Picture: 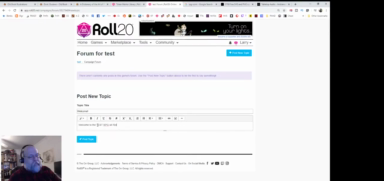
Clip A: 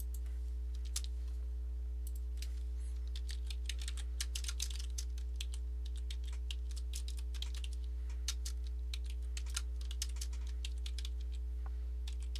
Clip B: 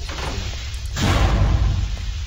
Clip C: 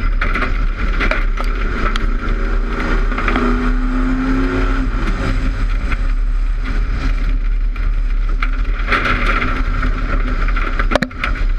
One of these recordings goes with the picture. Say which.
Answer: A